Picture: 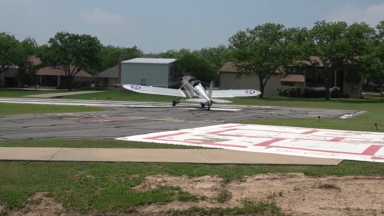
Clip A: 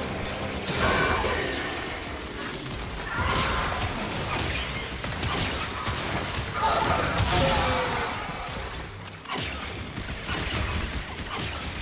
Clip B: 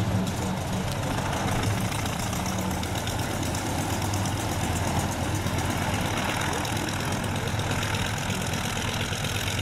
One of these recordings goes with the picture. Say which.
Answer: B